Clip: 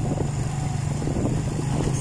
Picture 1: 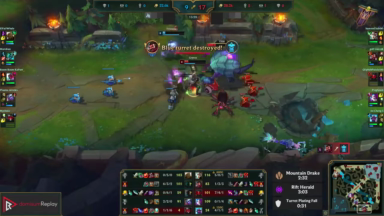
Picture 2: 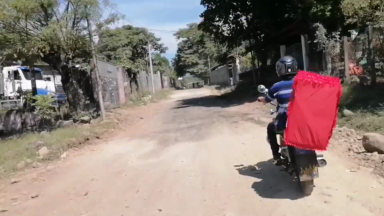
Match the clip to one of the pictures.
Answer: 2